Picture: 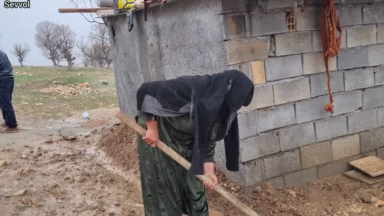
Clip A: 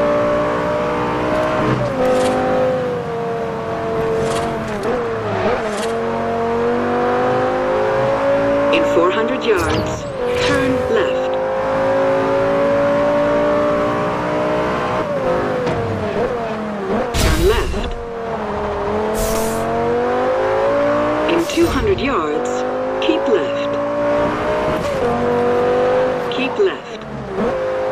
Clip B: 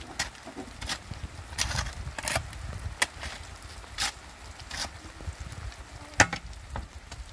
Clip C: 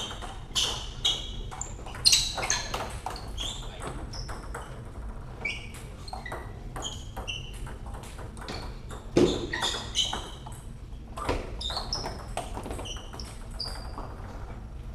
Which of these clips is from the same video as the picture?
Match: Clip B